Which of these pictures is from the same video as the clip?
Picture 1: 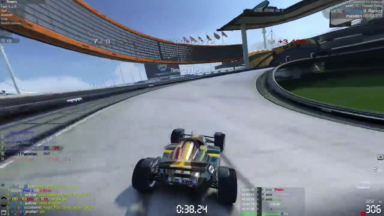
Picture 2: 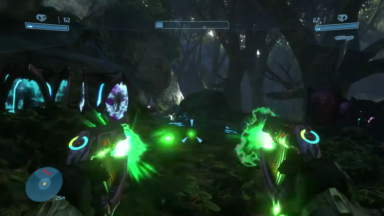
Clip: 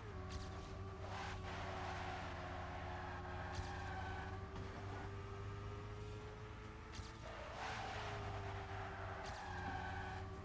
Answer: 1